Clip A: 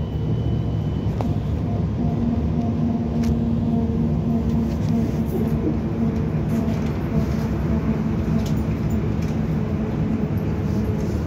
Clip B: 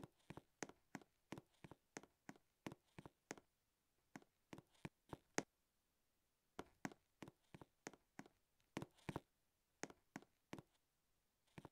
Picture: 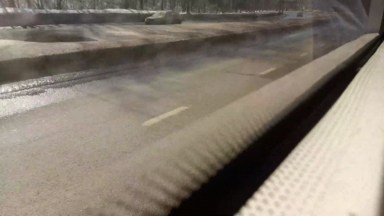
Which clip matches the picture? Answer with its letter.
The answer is A